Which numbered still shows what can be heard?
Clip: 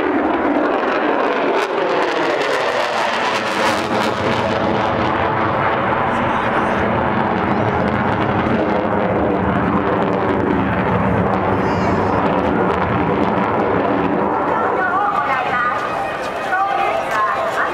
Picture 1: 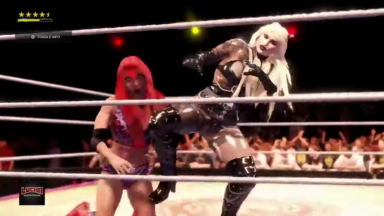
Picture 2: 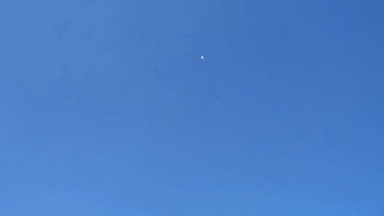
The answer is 2